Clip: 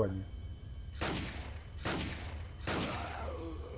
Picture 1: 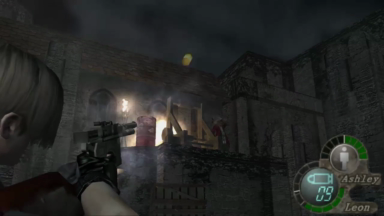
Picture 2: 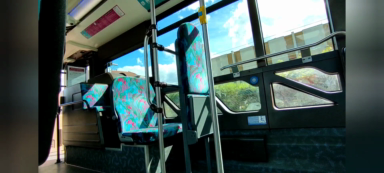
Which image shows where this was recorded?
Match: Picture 1